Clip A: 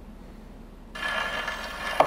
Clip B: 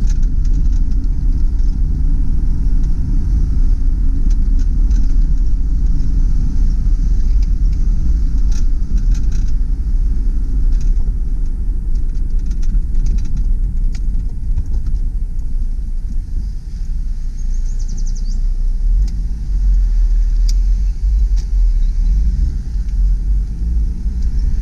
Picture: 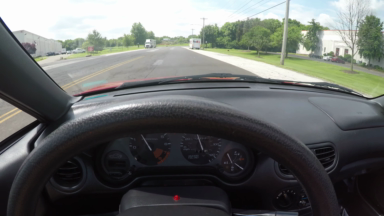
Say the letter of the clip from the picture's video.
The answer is B